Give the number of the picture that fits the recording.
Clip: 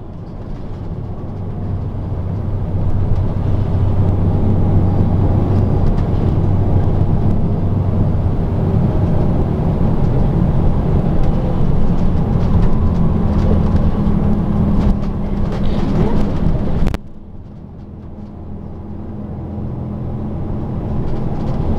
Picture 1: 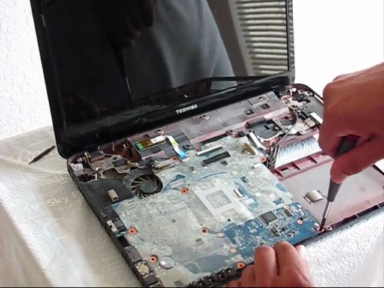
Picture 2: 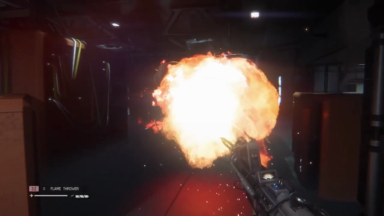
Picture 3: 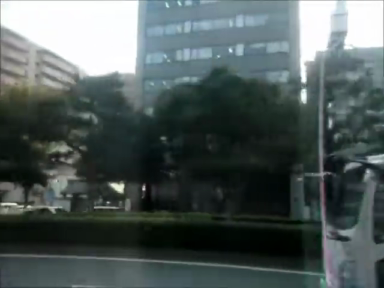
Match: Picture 3